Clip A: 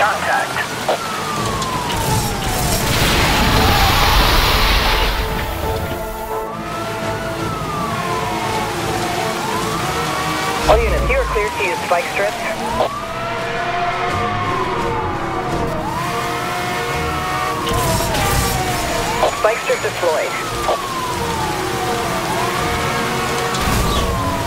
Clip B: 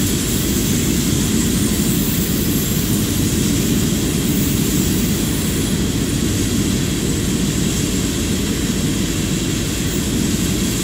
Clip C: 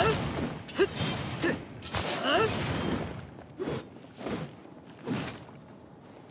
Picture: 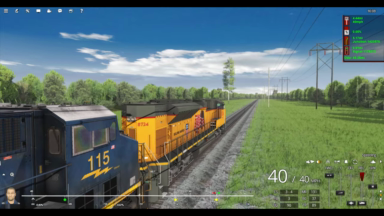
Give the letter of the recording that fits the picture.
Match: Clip B